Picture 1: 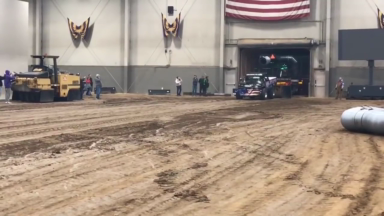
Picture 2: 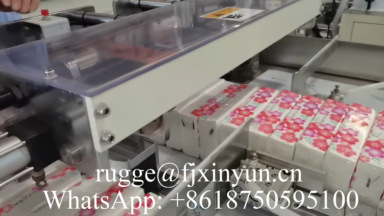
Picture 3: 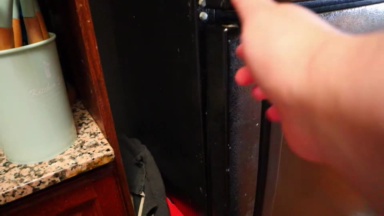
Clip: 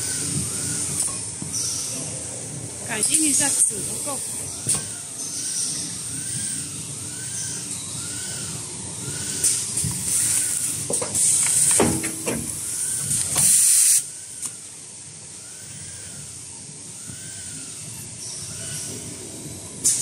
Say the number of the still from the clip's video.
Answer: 2